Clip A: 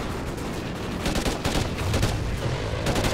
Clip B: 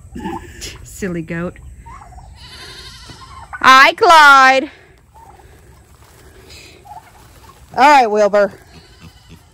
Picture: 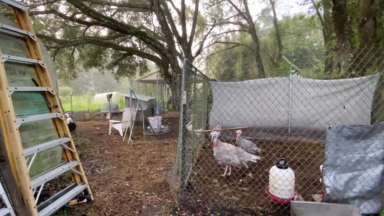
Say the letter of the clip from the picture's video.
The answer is B